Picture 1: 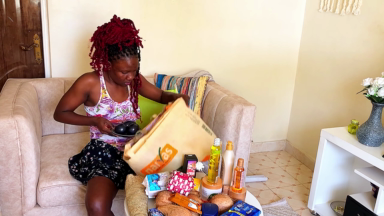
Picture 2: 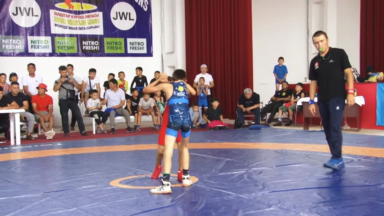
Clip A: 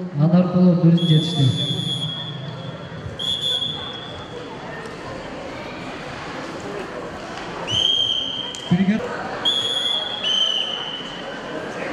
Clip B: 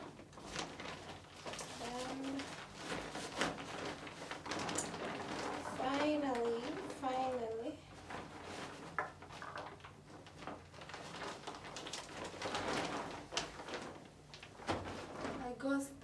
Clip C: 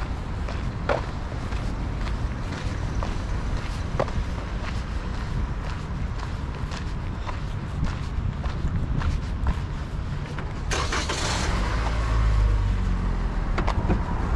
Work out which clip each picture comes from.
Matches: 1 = B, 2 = A